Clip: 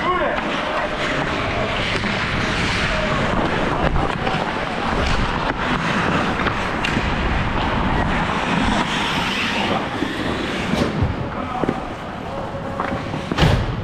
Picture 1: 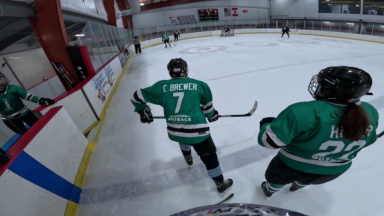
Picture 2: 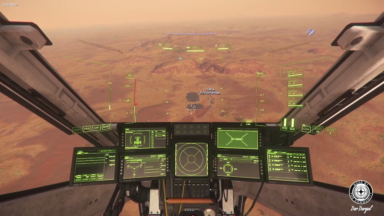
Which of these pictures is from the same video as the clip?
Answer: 1